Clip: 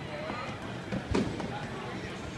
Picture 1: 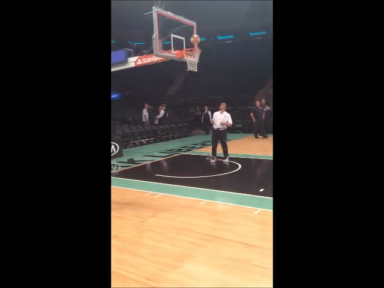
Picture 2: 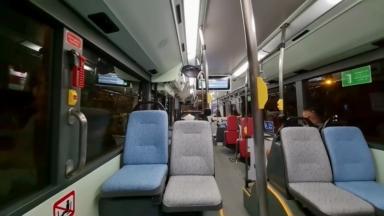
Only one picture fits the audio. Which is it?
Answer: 1